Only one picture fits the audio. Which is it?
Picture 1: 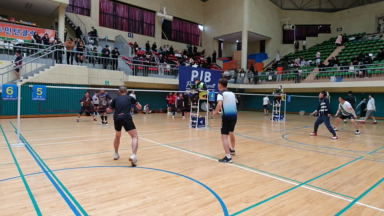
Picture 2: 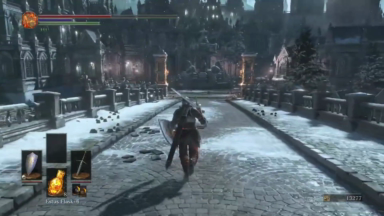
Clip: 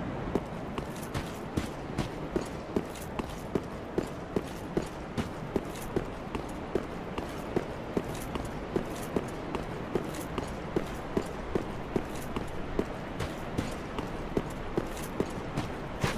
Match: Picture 2